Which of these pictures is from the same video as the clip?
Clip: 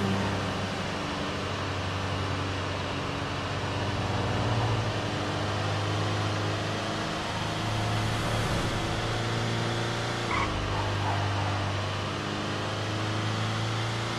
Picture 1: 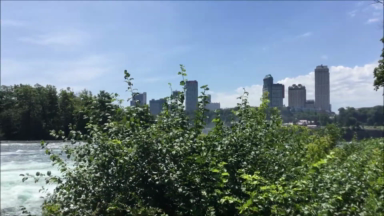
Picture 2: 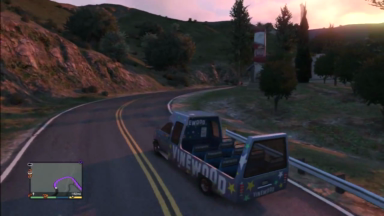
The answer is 2